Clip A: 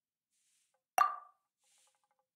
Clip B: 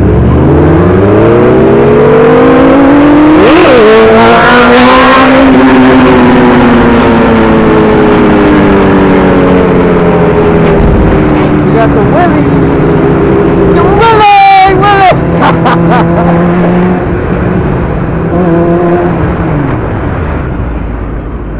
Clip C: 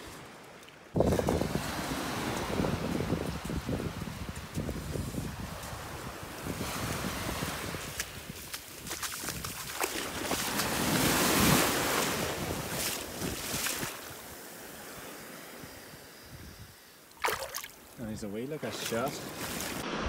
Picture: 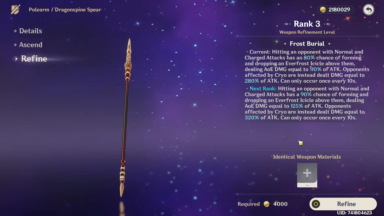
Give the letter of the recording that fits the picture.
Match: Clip A